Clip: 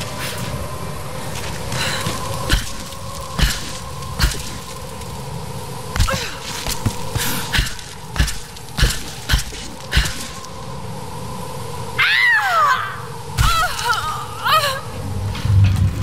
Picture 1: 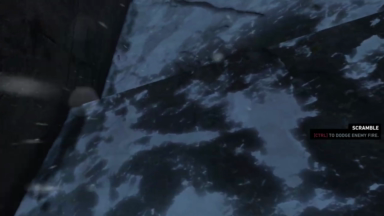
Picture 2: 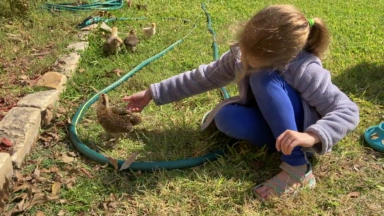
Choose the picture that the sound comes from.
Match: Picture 1